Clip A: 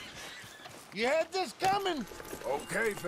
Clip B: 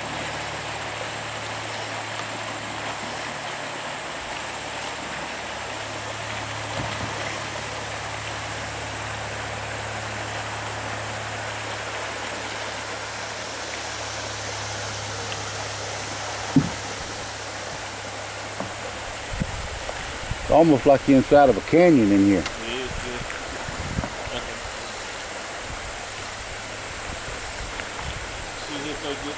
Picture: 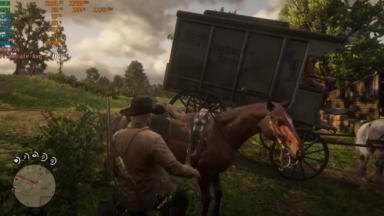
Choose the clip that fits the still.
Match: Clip A